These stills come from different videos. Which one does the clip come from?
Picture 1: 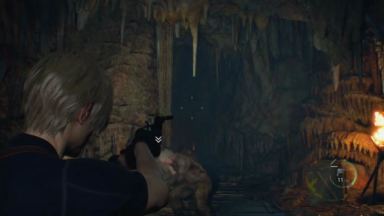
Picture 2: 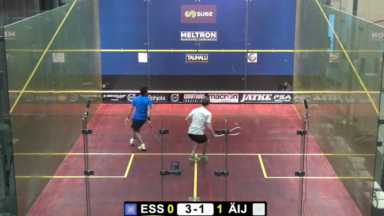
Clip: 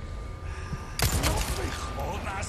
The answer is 1